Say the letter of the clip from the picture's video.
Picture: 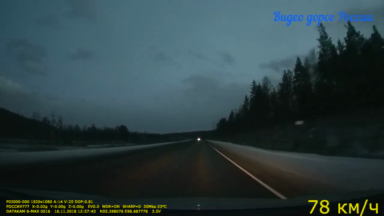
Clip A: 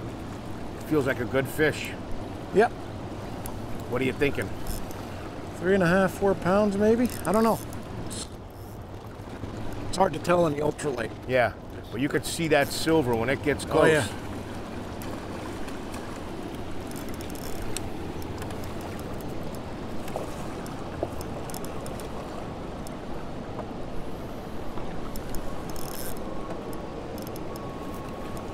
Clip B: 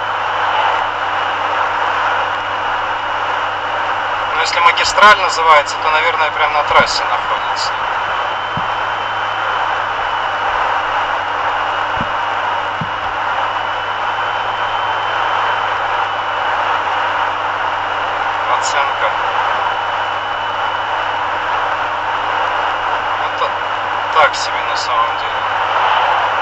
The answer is B